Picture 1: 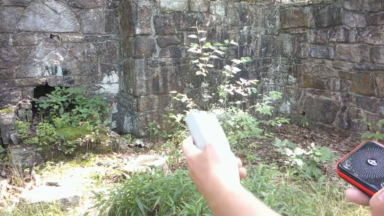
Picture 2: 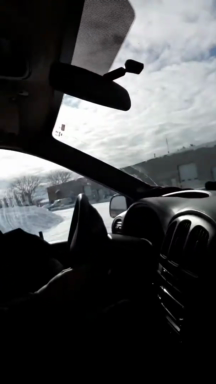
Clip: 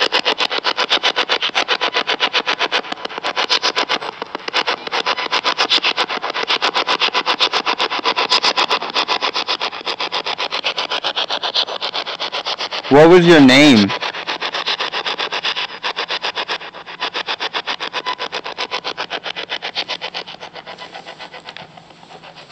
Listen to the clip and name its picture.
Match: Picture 1